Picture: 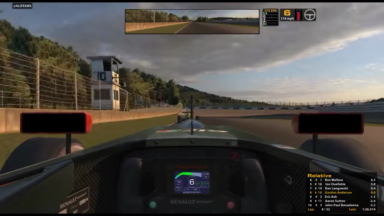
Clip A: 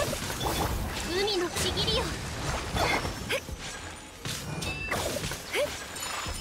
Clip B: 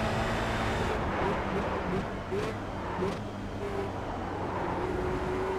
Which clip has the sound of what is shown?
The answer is B